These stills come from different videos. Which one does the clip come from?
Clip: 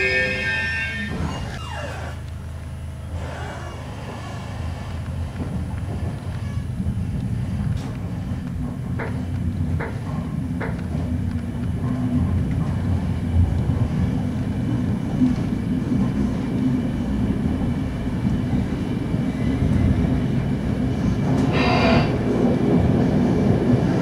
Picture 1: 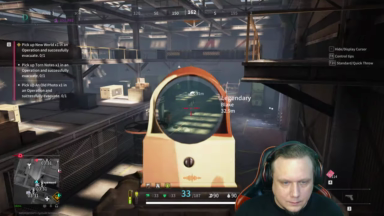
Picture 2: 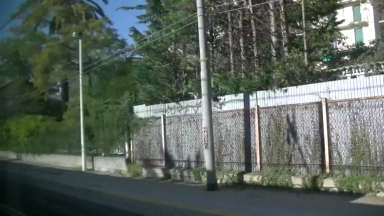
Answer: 2